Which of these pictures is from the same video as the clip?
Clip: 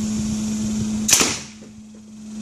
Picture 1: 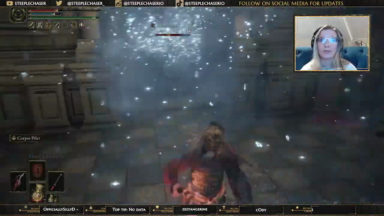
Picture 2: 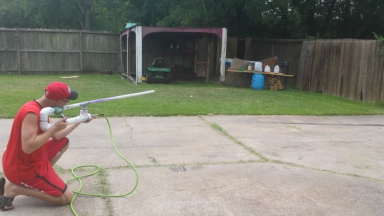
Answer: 2